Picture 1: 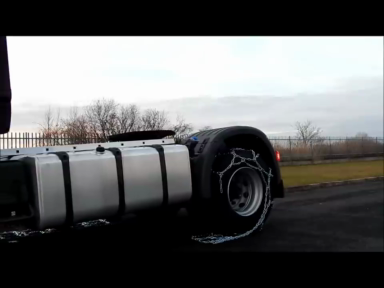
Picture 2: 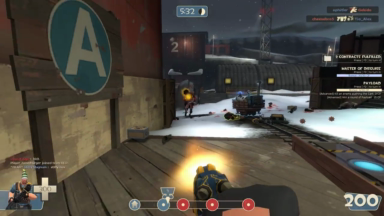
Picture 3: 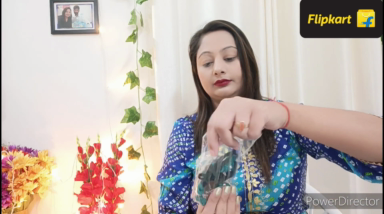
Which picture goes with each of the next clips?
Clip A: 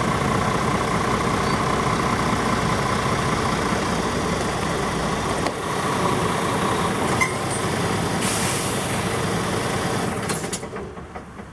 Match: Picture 1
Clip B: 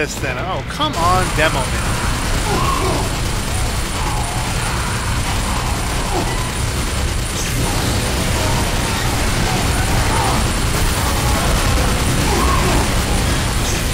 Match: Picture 2